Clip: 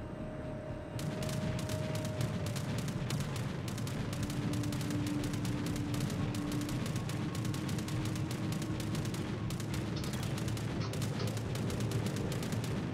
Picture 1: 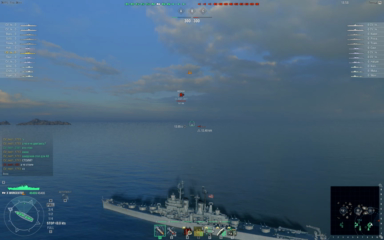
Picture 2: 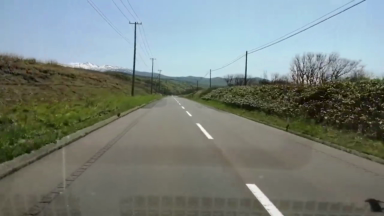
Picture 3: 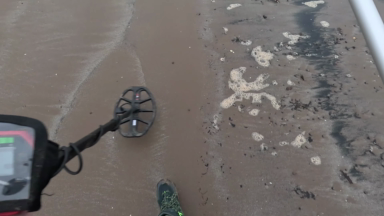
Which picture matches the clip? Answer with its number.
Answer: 1